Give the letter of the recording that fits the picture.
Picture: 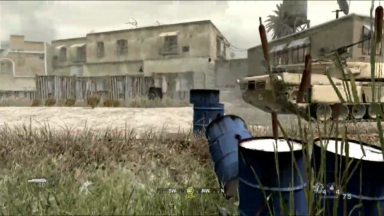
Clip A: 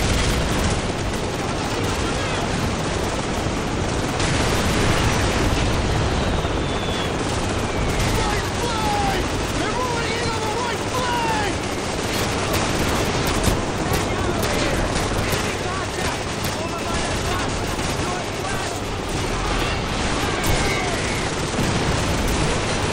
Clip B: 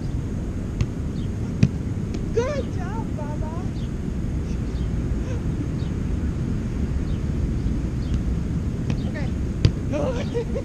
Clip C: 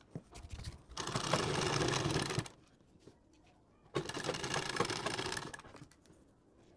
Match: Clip A